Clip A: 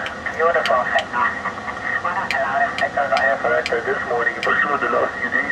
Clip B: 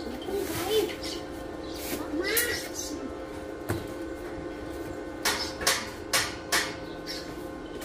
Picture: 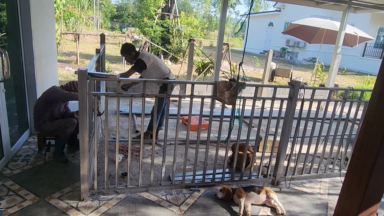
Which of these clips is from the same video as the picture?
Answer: B